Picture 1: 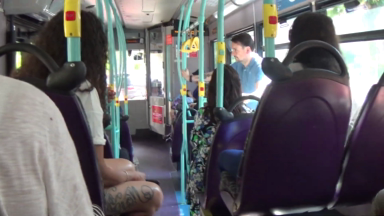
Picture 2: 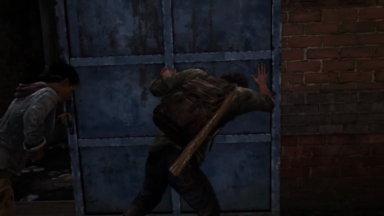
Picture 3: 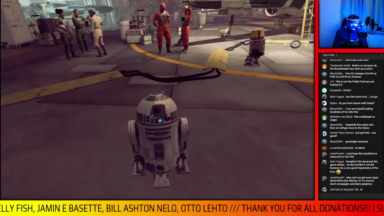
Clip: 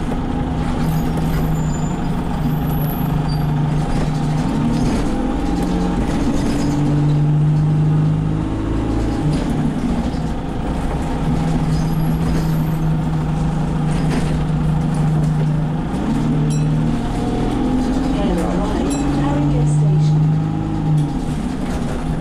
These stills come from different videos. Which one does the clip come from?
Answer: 1